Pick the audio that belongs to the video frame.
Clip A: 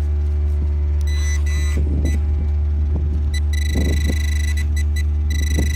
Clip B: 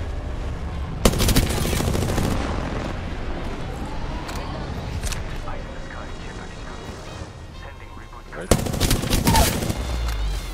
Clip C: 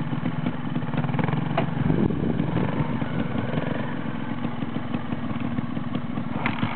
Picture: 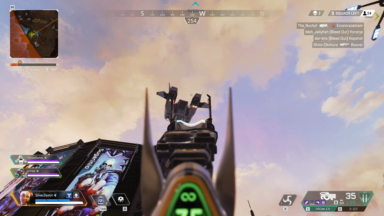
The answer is B